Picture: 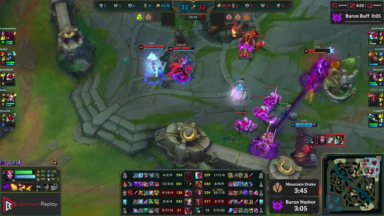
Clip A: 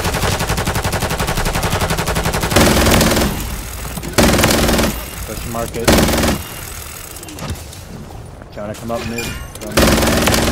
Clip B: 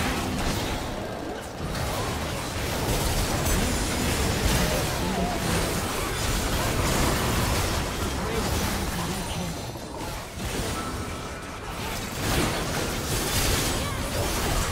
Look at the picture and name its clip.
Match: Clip B